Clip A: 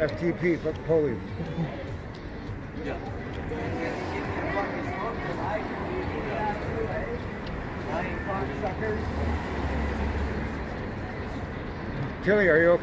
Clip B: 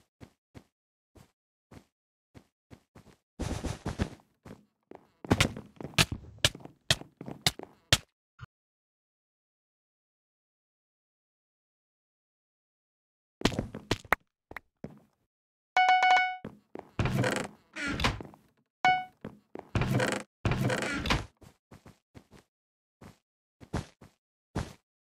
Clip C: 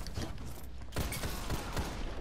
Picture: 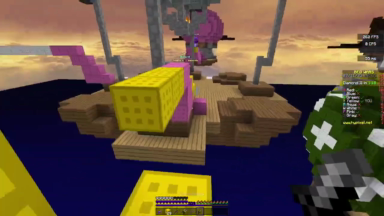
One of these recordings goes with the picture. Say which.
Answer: B